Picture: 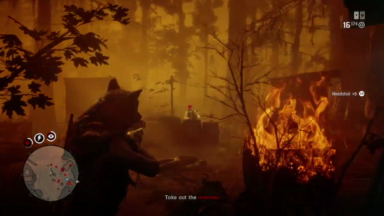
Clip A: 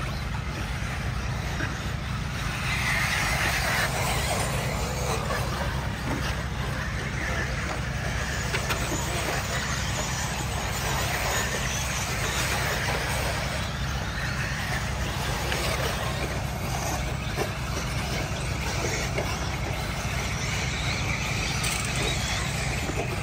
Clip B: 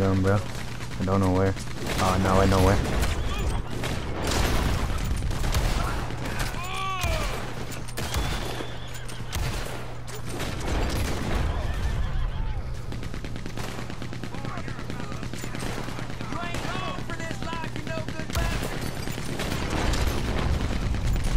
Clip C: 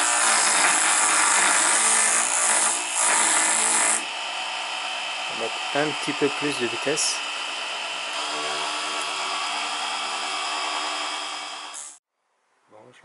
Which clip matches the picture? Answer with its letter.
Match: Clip B